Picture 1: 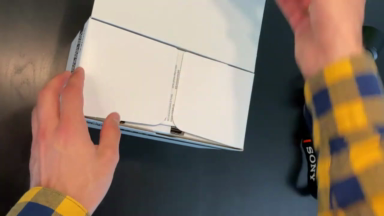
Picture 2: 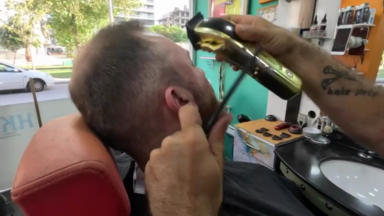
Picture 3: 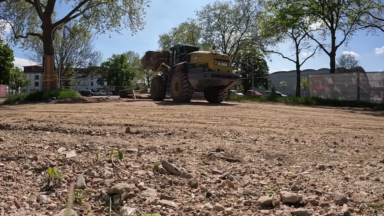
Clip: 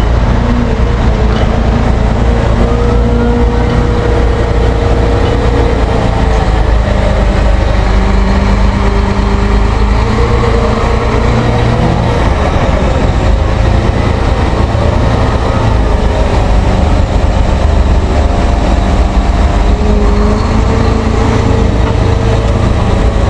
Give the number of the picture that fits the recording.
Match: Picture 3